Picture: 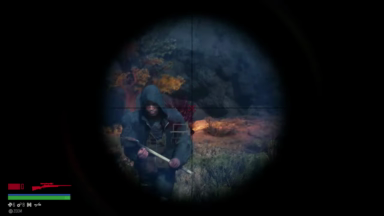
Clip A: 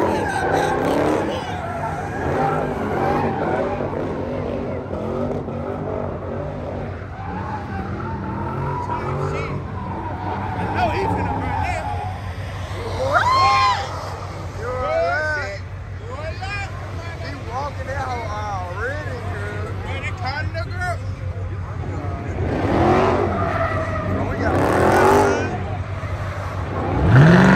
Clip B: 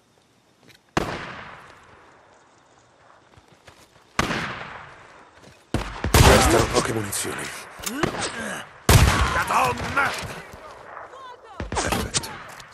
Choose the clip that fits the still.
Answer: B